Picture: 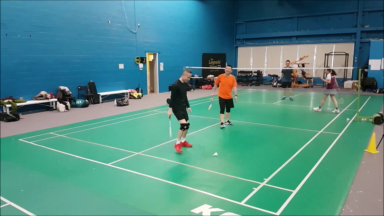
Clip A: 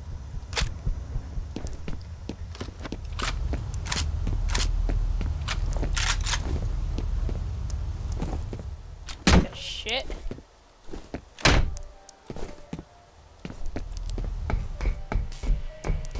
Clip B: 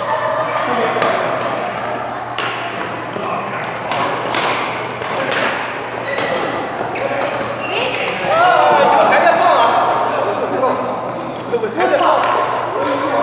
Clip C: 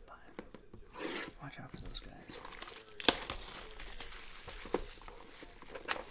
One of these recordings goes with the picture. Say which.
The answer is B